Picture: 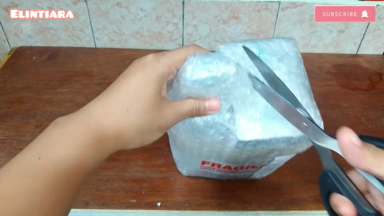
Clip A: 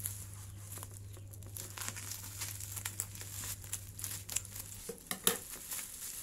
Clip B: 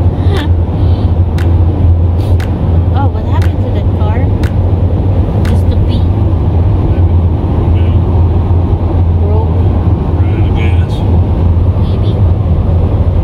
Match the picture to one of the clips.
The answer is A